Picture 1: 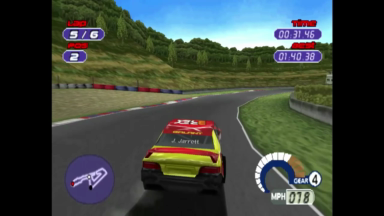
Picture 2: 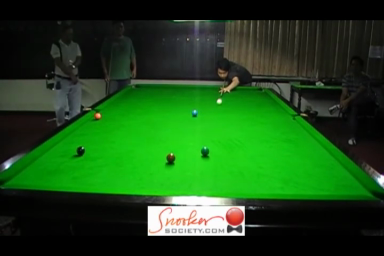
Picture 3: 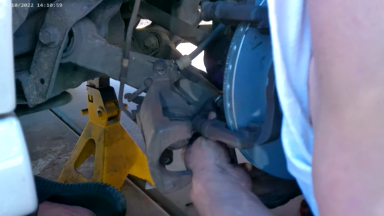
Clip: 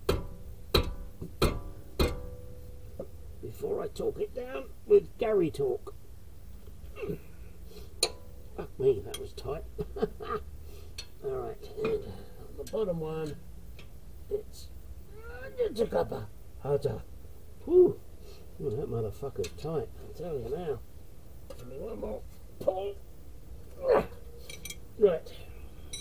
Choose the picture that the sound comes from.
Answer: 3